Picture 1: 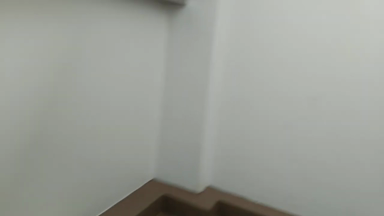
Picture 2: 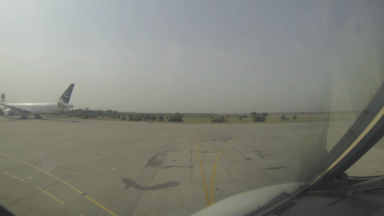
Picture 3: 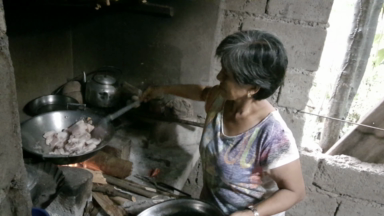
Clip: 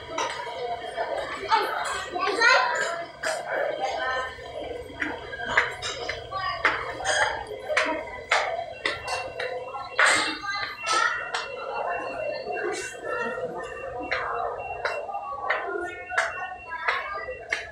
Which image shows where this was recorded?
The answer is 1